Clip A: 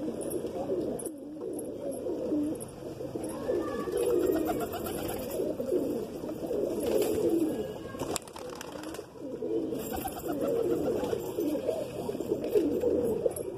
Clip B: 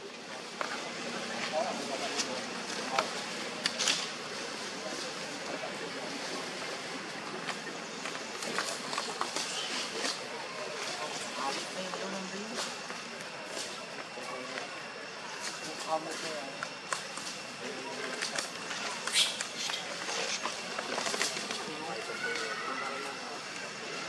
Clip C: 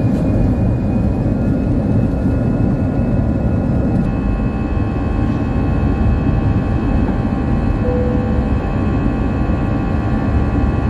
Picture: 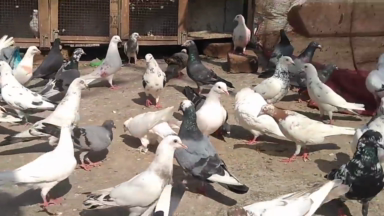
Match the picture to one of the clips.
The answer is A